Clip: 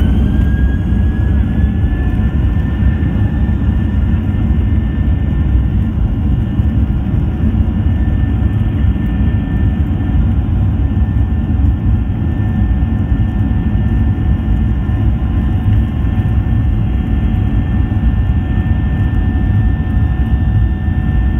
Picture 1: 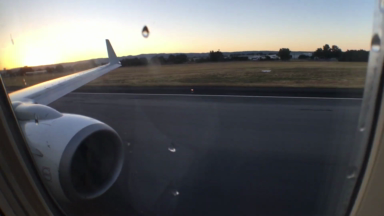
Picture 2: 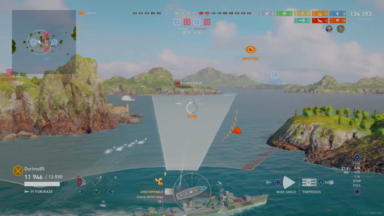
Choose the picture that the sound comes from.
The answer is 1